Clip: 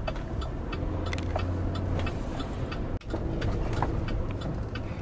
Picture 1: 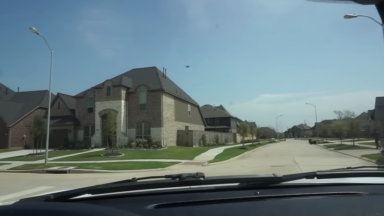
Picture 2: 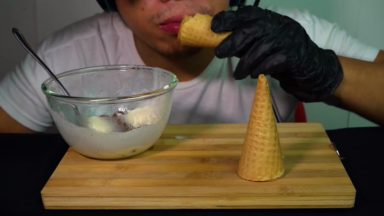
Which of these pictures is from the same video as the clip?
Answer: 1